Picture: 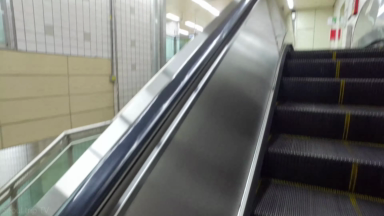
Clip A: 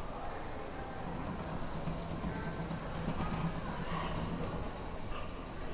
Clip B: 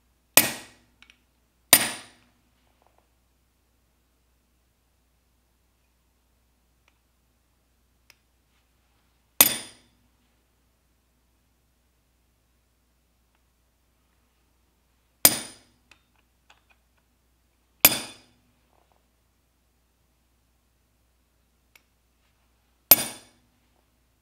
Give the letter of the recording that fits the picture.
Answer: A